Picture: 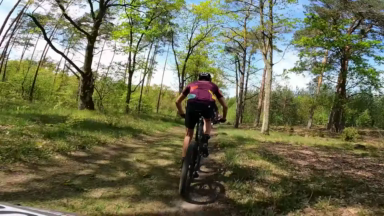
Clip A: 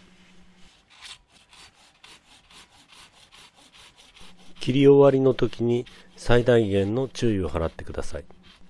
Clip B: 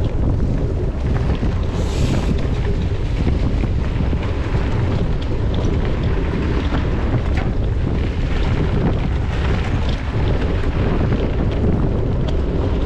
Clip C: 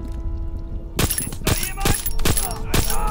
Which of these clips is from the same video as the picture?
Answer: B